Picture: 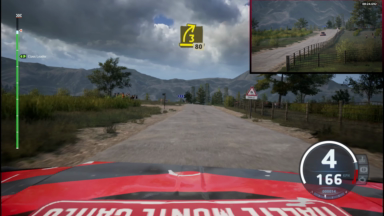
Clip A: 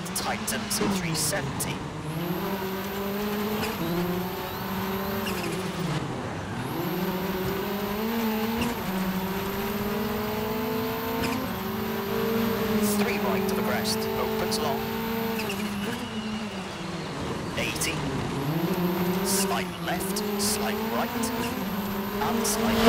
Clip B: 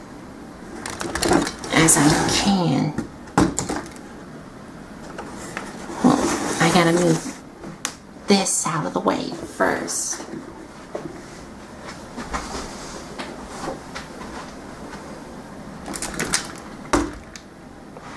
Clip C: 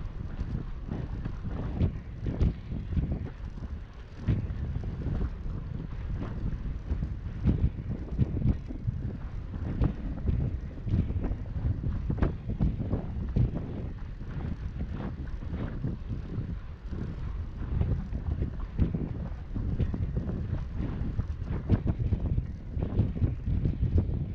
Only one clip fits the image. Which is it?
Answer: A